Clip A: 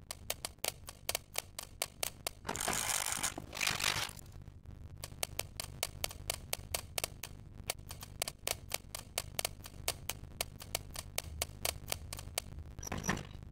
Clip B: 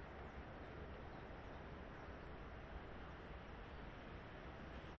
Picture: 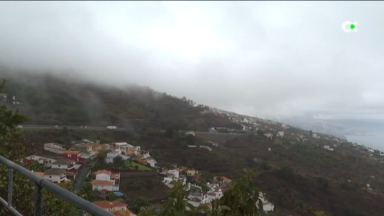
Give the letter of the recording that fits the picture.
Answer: B